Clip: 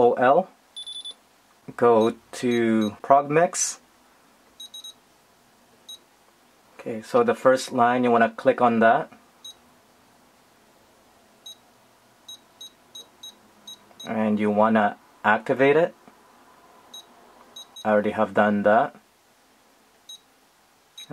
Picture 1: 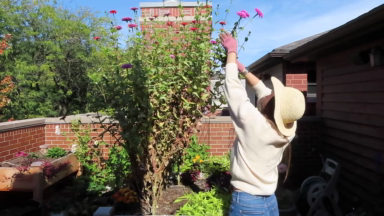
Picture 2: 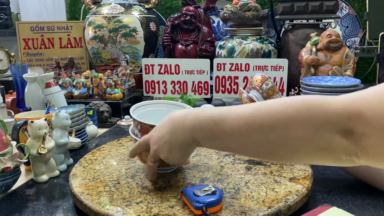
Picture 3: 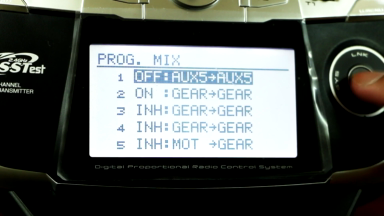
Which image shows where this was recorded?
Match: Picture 3